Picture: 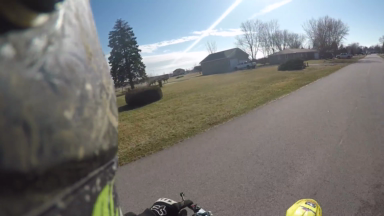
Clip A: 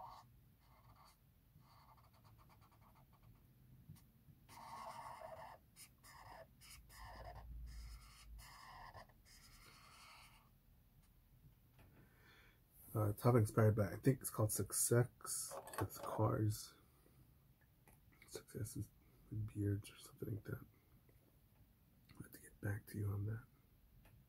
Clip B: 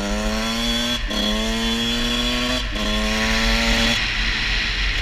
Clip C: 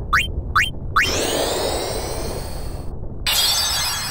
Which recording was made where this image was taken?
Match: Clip B